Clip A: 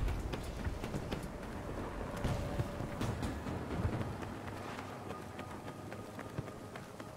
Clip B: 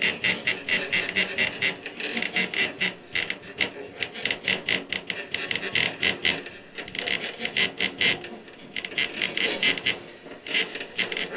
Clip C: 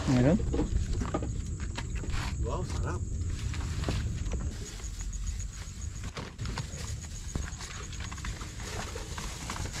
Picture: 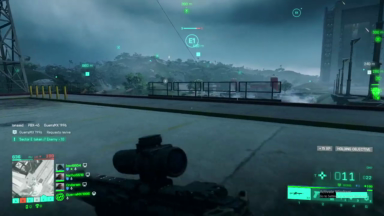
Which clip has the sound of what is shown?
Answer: A